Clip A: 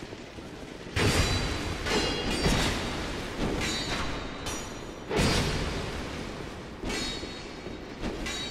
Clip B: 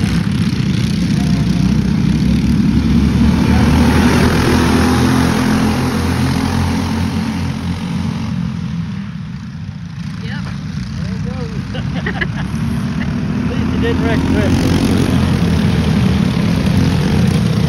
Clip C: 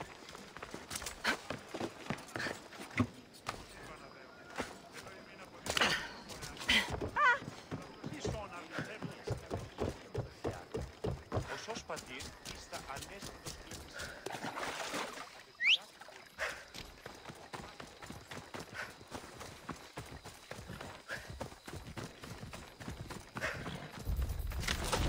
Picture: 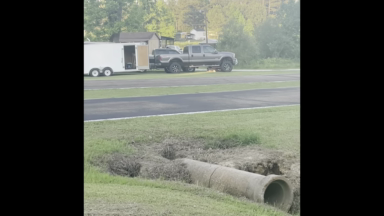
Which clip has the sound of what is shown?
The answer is B